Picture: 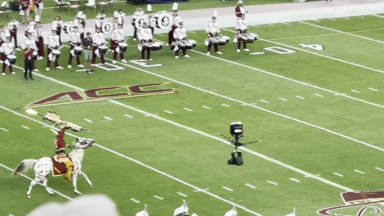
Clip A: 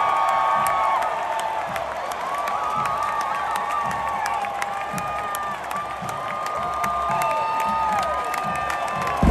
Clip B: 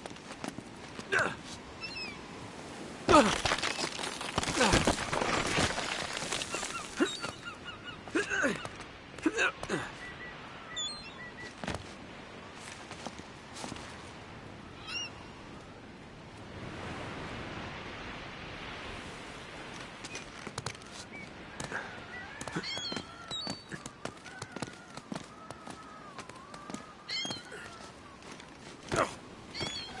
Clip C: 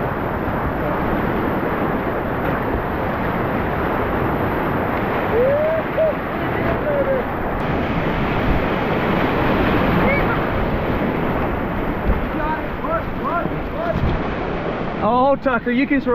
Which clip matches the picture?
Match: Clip A